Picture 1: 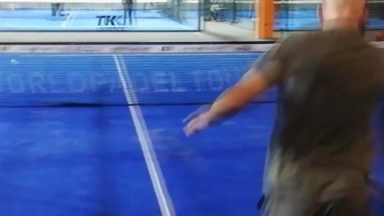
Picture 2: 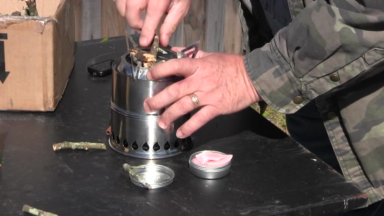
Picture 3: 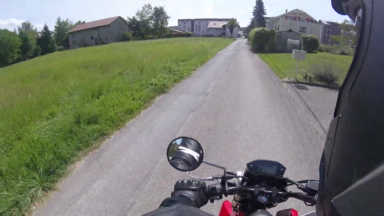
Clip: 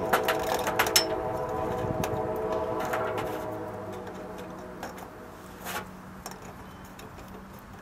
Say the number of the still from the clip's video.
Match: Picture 2